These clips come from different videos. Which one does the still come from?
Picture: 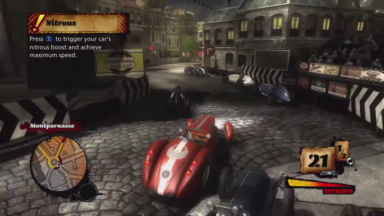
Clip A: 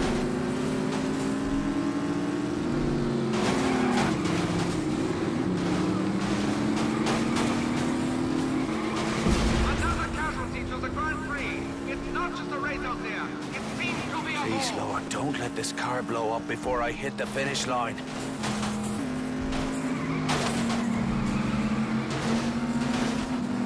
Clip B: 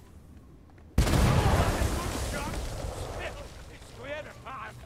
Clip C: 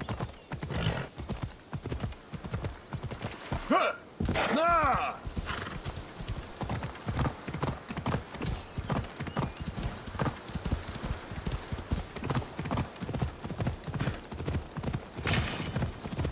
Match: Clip A